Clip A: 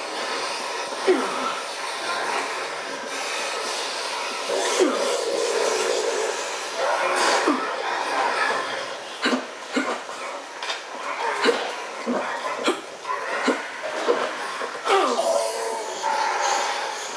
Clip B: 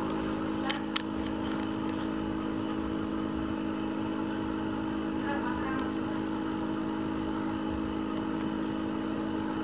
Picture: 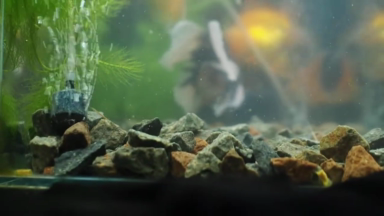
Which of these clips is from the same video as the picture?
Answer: B